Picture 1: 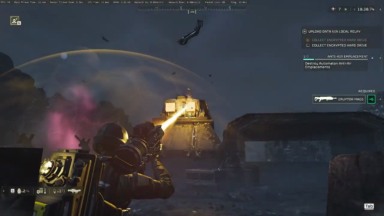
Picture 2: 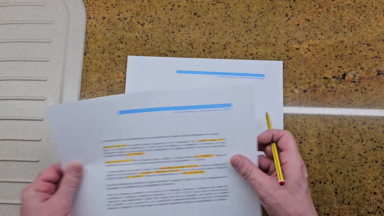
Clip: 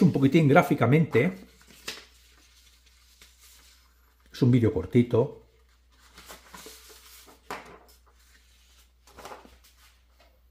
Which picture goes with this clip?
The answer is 2